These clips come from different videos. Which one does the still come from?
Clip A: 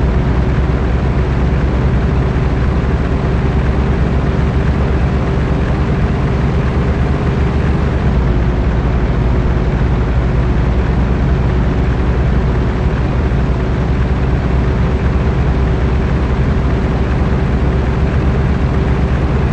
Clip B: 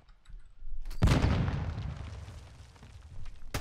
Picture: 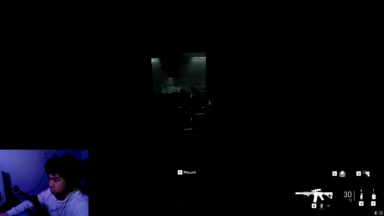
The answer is B